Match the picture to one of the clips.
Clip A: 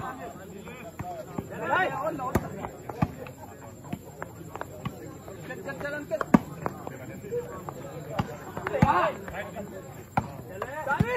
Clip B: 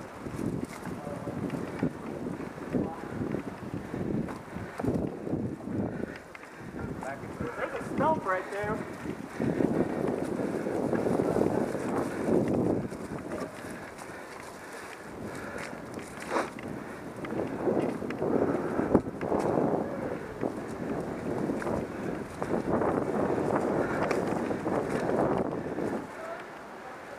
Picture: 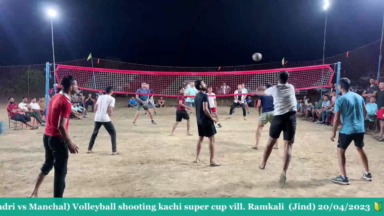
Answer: A